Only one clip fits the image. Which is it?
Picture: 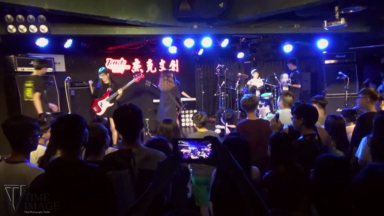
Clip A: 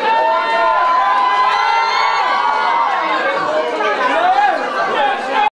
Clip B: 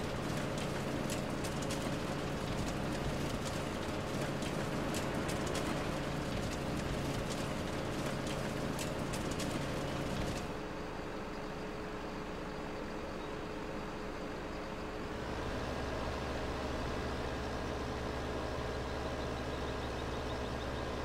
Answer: A